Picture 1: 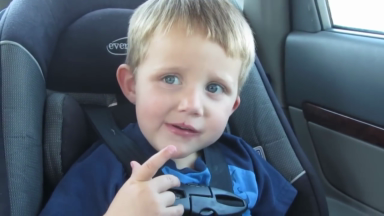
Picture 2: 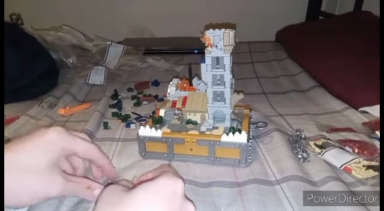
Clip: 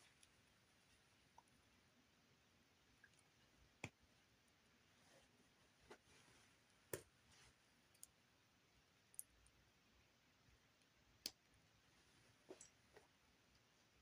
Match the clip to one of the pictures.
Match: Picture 2